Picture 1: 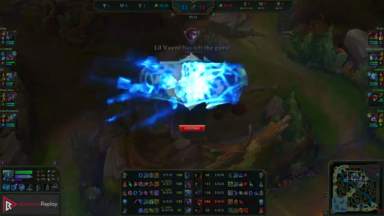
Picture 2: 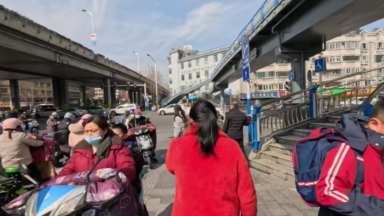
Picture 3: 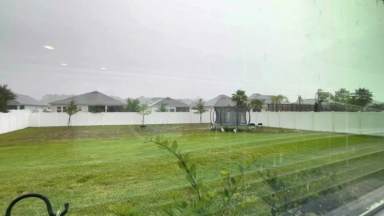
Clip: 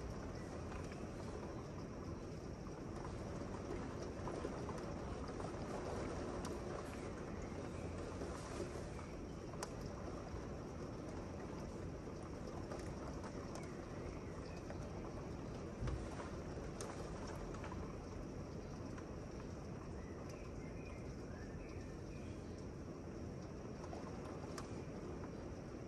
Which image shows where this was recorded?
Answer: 3